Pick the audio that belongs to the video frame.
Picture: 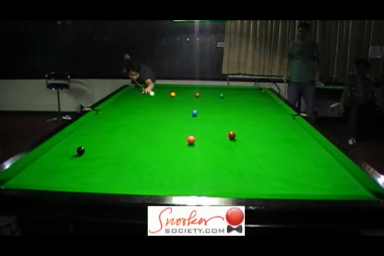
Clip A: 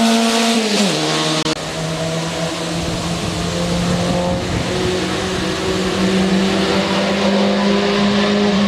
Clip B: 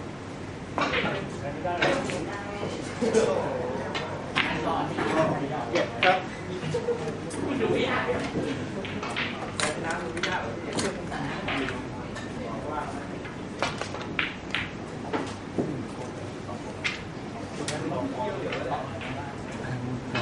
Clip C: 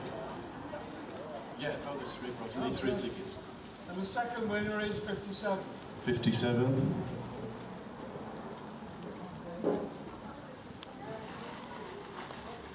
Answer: B